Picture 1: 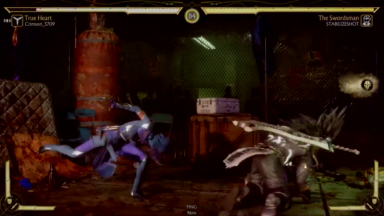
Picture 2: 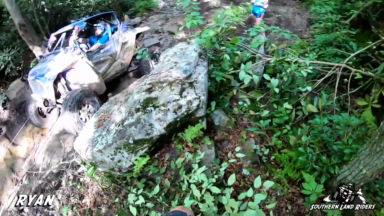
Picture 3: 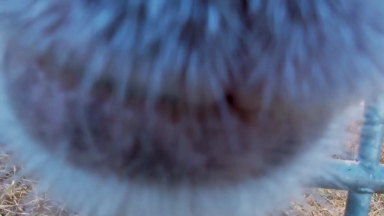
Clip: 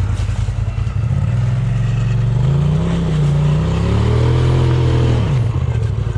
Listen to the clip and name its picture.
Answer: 2